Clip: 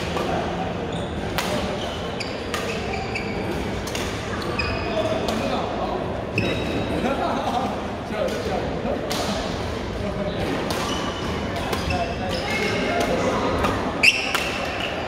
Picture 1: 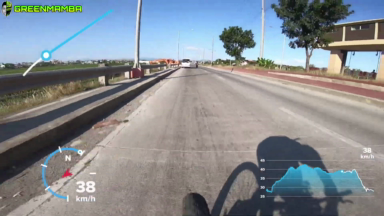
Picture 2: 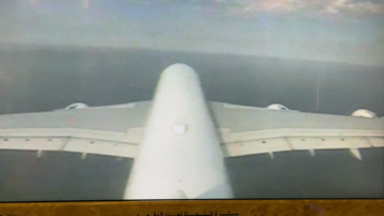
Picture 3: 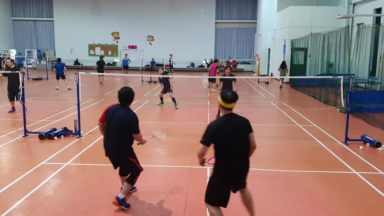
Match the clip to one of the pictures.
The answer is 3